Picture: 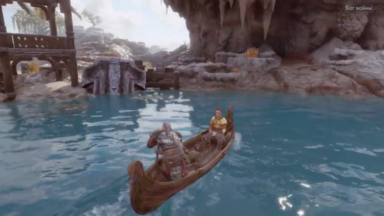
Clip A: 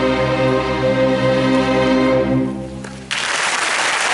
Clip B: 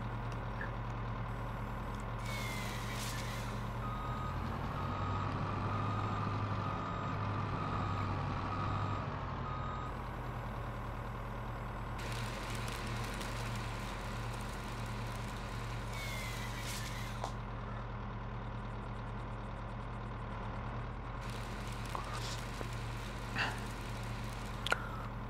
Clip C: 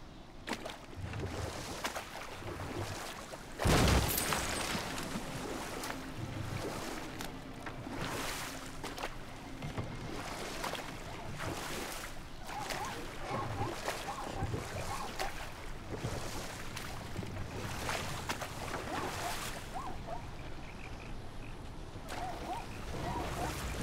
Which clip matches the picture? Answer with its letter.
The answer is C